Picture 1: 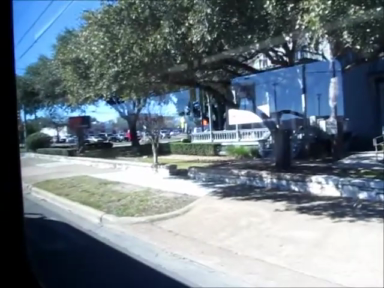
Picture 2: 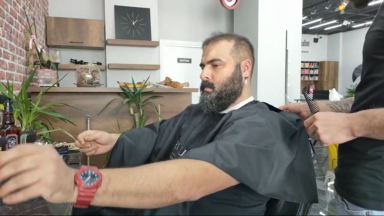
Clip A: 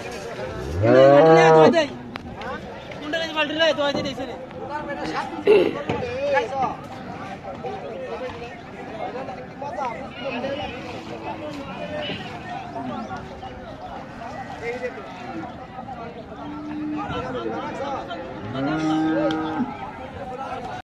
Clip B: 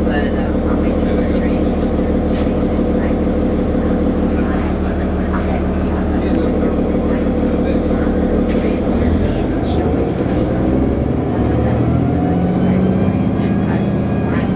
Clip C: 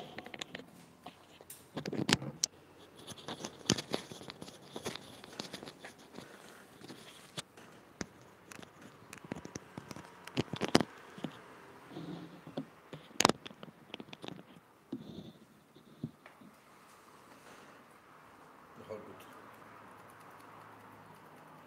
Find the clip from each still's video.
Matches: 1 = B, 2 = C